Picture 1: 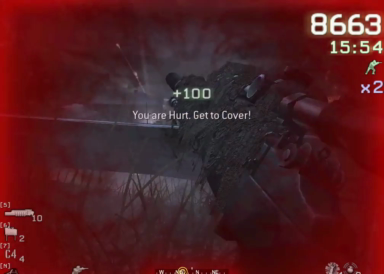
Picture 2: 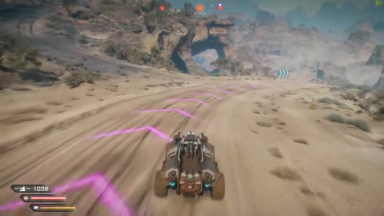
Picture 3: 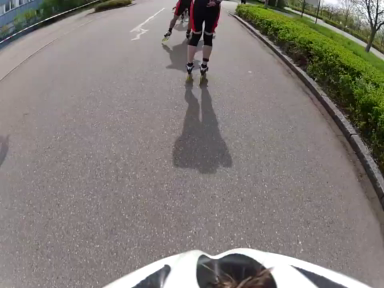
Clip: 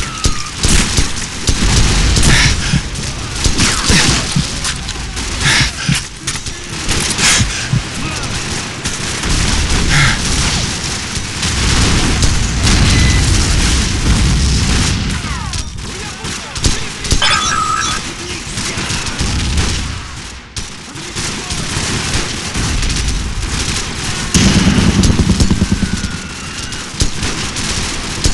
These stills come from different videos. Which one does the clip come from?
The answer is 1